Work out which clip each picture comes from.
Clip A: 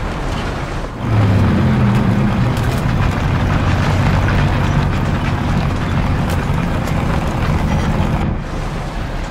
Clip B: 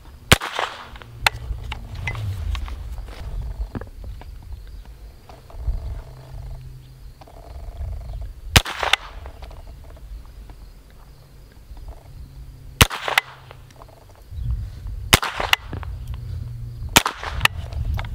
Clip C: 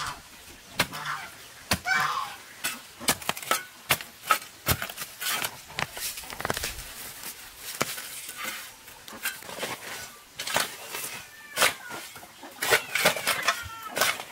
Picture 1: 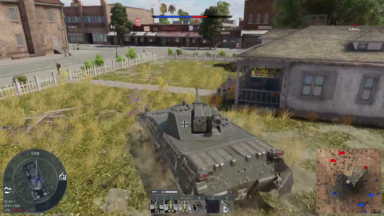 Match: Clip A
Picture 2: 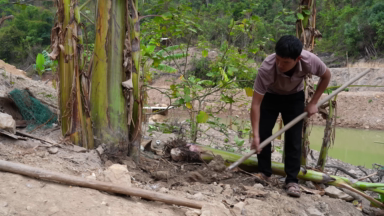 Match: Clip C